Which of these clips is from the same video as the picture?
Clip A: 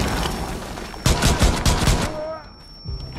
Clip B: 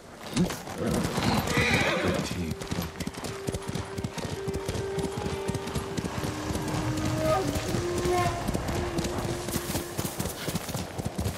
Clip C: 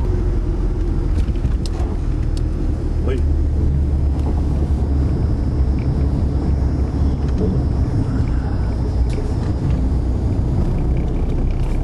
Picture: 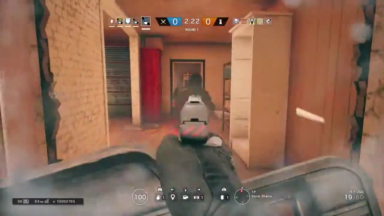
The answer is A